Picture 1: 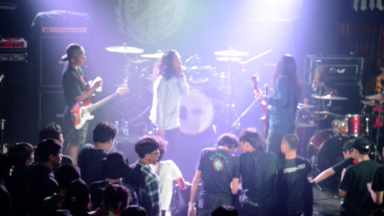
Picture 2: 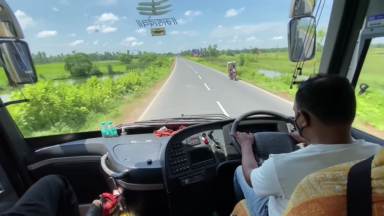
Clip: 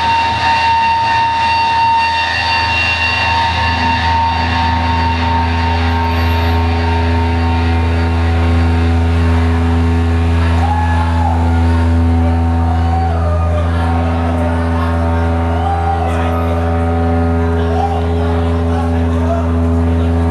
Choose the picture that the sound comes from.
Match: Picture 1